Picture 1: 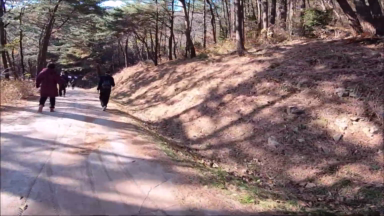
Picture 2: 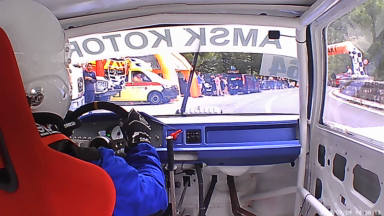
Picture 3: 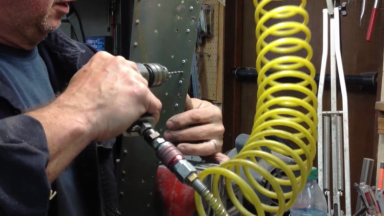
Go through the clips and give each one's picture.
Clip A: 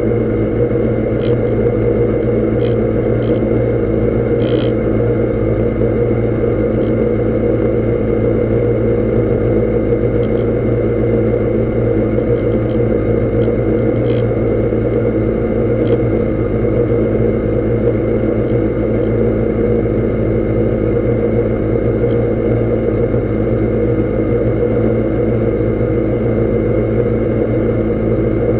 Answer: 2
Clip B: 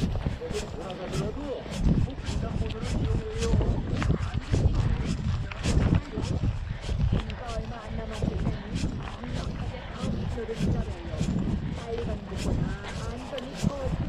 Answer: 1